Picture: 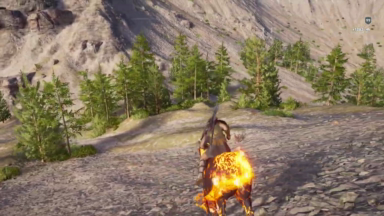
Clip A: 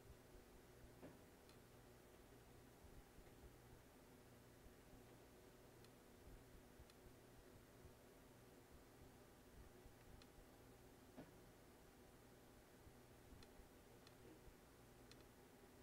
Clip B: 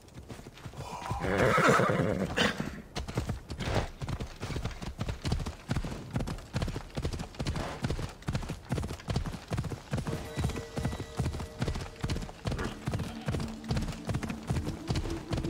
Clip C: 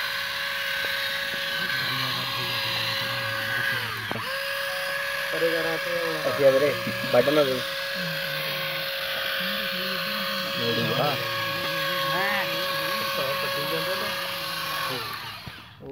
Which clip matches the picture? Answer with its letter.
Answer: B